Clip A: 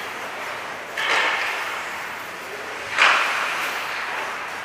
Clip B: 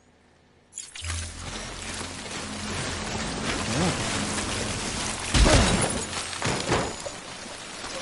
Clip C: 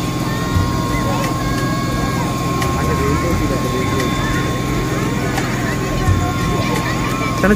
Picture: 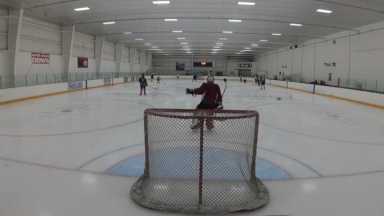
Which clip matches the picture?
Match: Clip A